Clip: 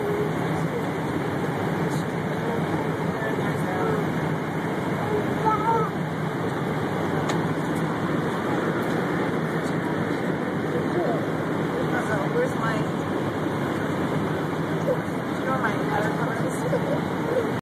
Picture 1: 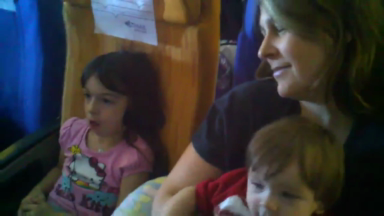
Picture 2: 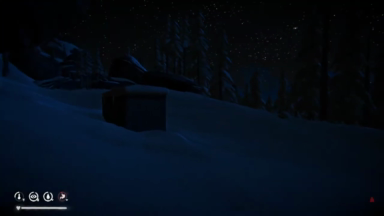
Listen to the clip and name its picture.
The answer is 1